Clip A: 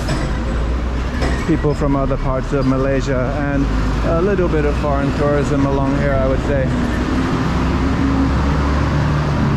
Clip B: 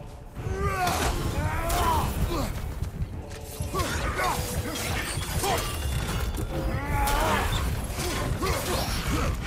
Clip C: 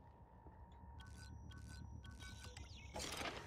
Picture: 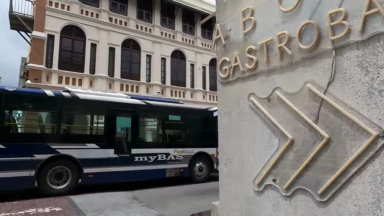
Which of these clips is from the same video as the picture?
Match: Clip A